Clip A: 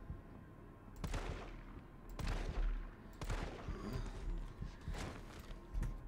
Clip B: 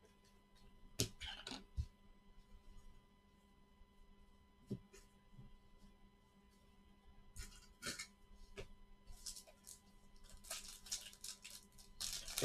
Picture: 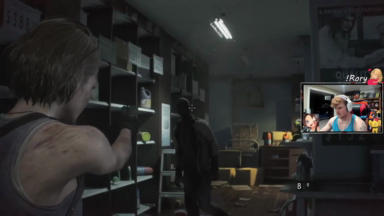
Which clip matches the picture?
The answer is A